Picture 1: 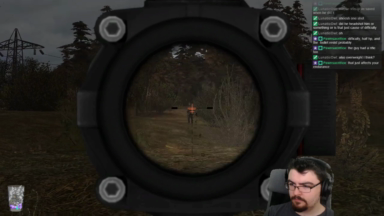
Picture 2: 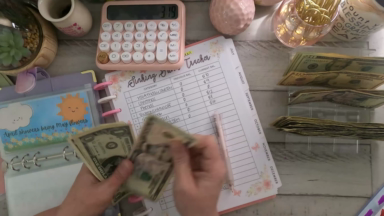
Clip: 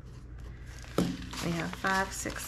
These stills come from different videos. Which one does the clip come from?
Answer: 2